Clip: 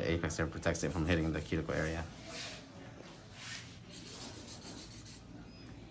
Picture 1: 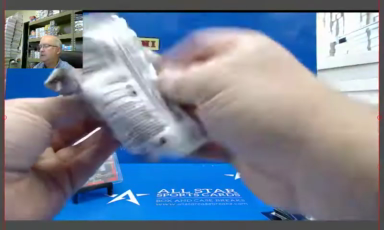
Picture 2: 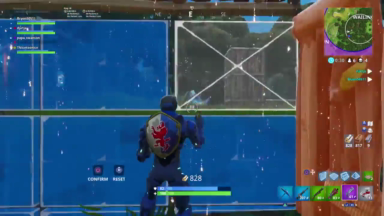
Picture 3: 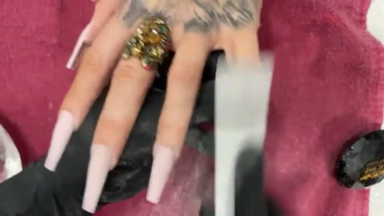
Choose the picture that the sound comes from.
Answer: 3